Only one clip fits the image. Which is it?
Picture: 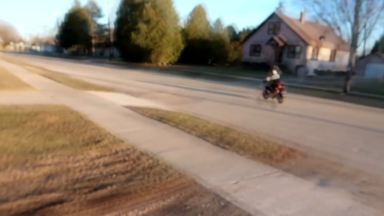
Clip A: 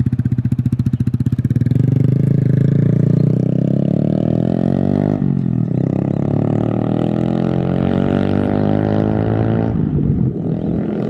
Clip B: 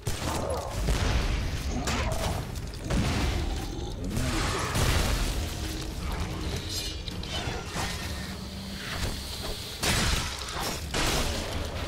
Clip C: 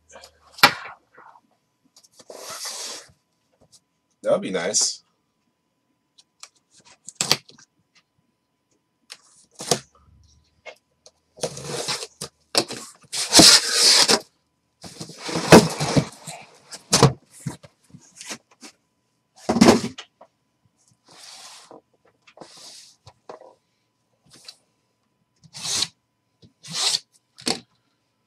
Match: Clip A